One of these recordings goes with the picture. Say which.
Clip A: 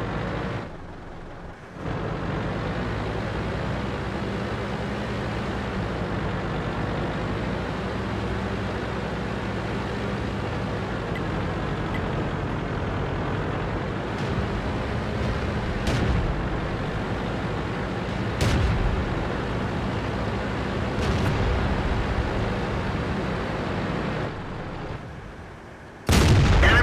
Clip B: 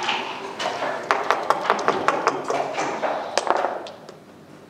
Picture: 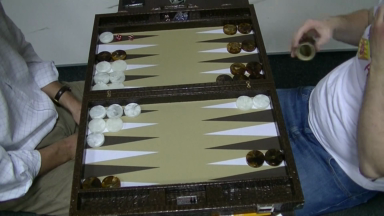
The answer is B